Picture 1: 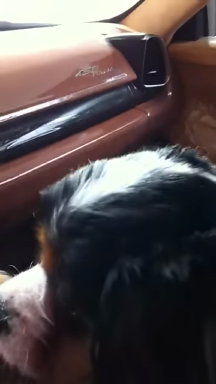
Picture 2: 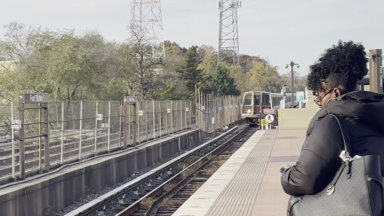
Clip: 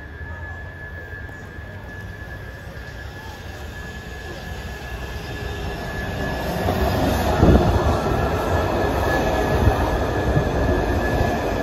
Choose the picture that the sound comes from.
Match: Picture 2